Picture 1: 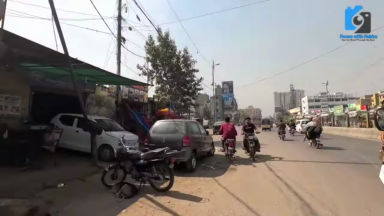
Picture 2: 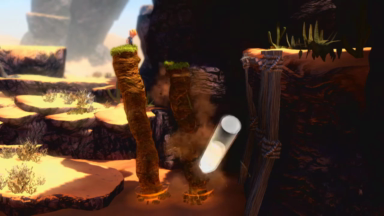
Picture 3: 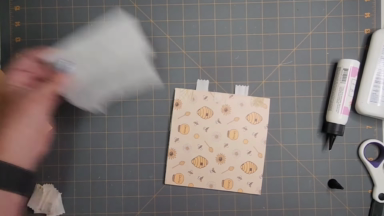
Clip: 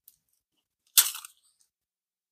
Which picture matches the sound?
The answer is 3